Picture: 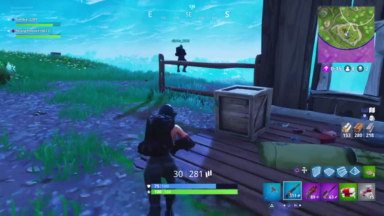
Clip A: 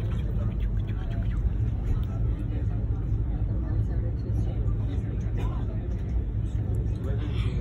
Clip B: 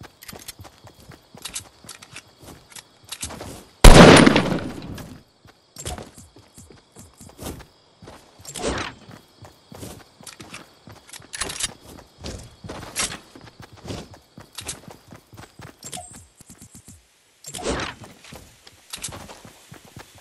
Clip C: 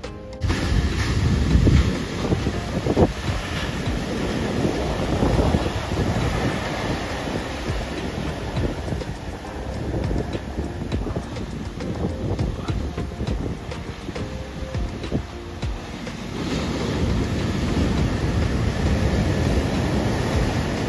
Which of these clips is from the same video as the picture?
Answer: B